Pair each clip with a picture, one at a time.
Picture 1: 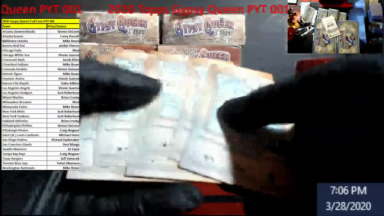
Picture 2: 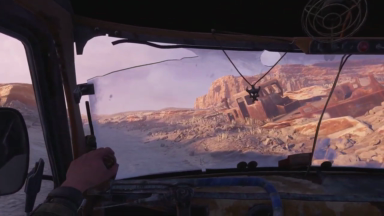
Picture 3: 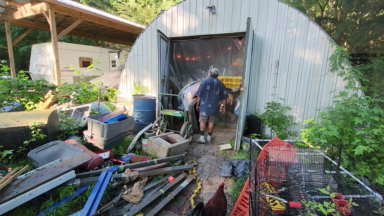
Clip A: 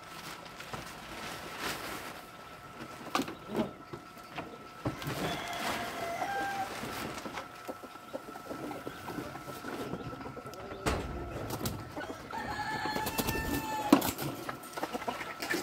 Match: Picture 3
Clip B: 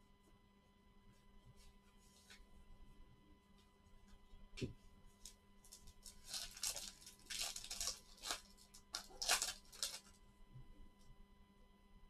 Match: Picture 1